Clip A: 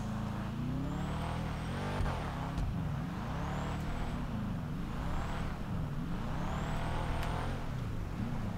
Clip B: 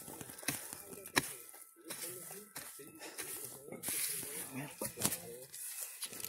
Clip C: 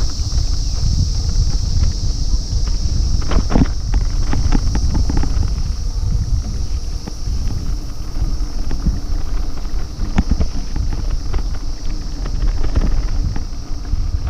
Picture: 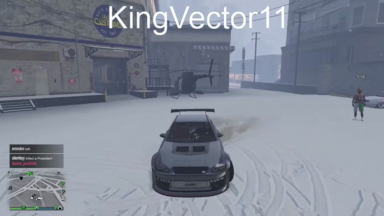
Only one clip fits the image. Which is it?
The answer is A